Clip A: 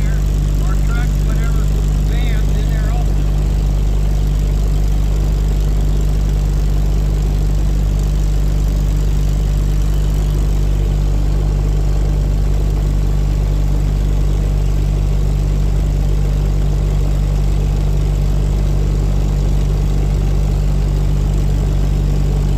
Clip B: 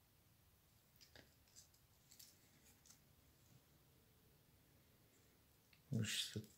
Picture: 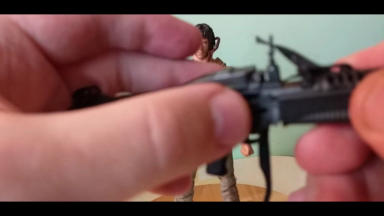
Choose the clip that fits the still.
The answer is B